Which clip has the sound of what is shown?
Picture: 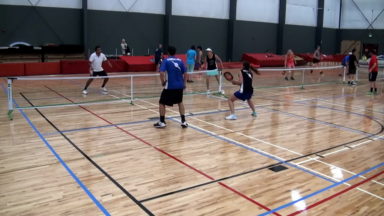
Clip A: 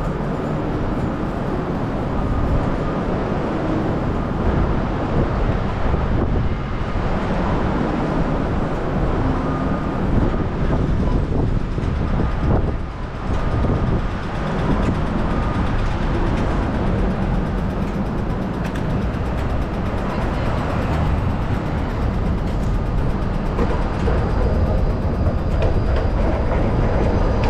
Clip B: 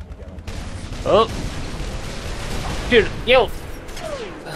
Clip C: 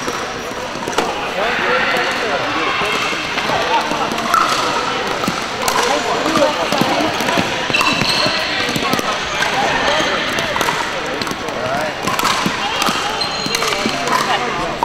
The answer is C